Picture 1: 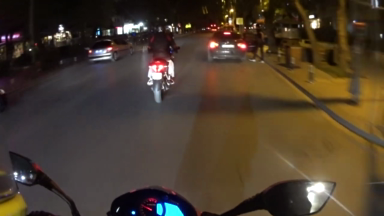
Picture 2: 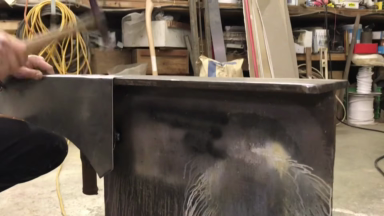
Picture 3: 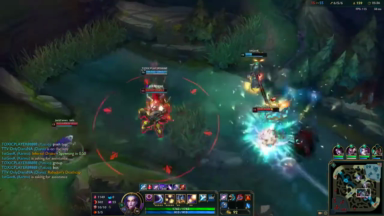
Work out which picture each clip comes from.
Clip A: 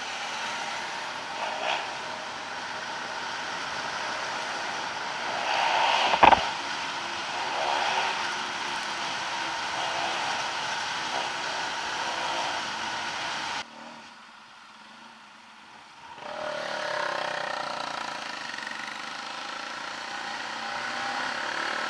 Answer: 1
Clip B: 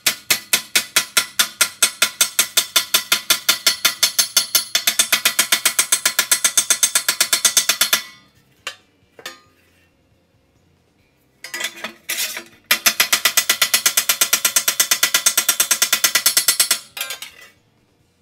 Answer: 2